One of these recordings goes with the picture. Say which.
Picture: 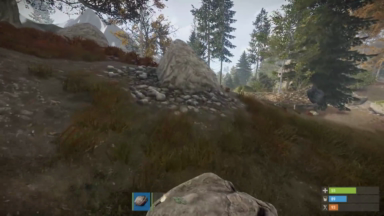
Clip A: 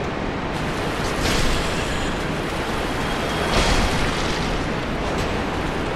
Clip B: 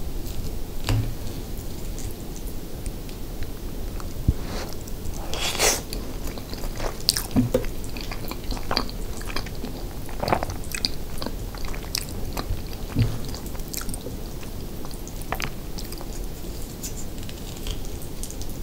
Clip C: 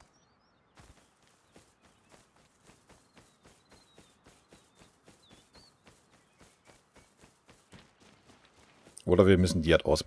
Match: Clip C